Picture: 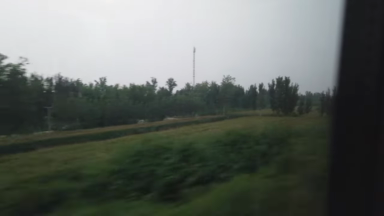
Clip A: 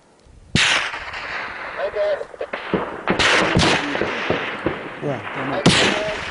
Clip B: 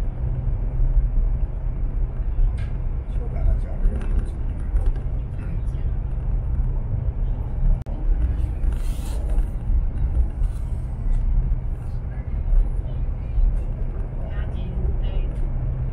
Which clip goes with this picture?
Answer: B